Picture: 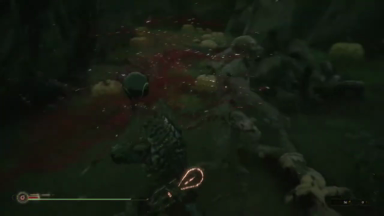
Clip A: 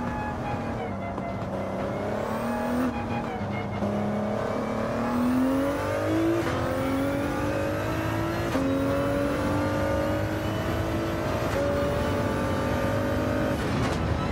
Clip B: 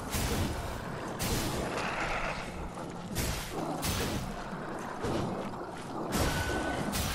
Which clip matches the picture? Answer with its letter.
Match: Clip B